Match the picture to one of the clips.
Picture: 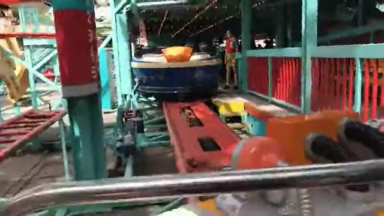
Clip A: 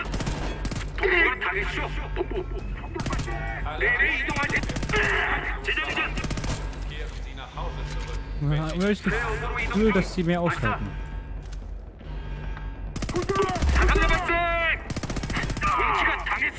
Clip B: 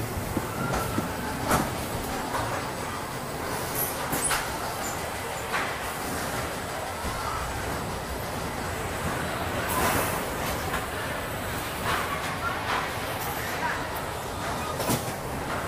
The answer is B